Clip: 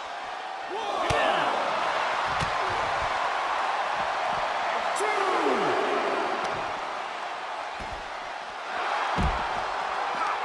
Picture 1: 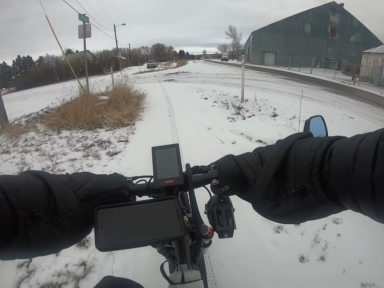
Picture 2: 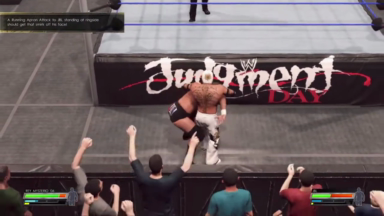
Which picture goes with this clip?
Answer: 2